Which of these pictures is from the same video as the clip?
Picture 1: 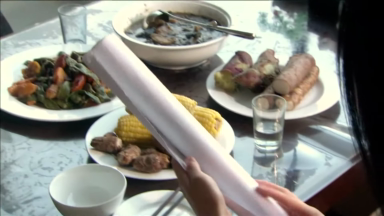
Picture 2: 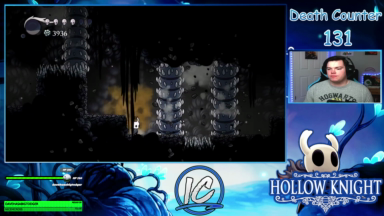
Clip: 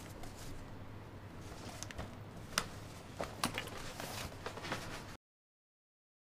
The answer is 1